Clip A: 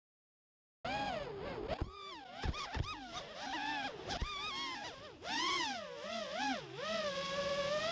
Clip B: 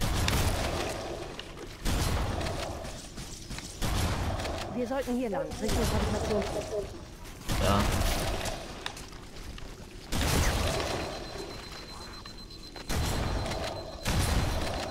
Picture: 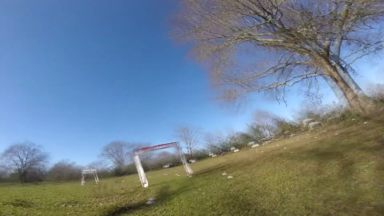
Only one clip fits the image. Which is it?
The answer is A